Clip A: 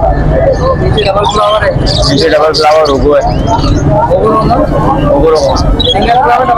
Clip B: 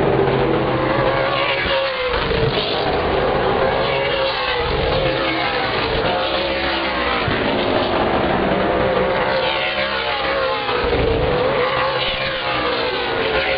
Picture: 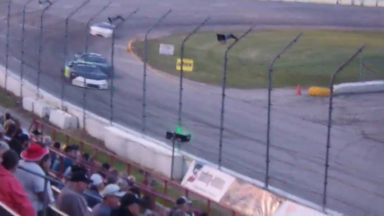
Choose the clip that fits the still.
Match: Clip B